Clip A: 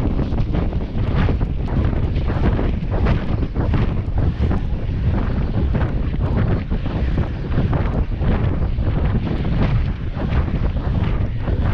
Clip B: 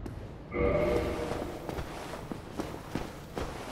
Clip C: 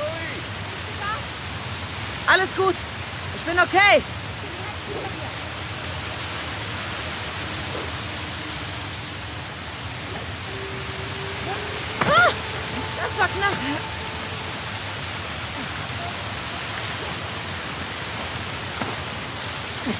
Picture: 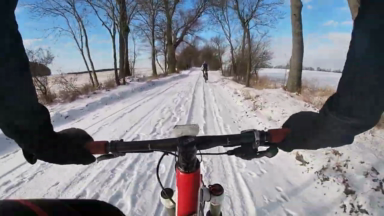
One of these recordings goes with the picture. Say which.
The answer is A